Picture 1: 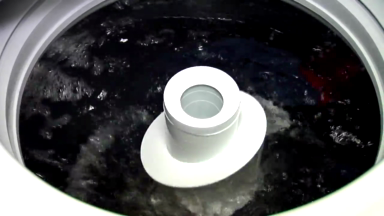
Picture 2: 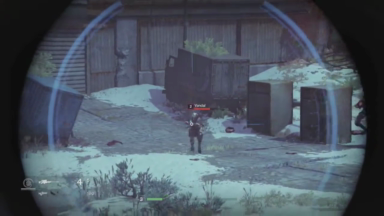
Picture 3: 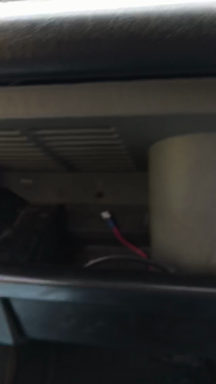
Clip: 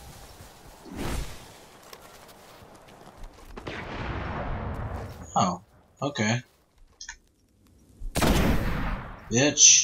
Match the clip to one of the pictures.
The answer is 2